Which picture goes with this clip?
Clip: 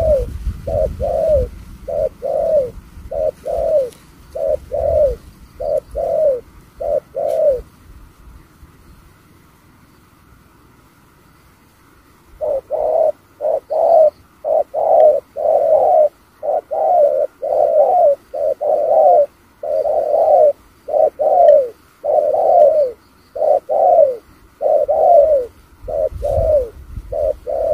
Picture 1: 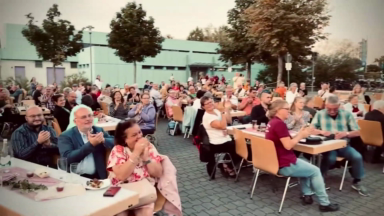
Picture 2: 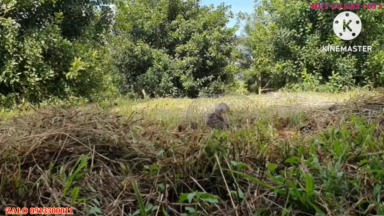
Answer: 2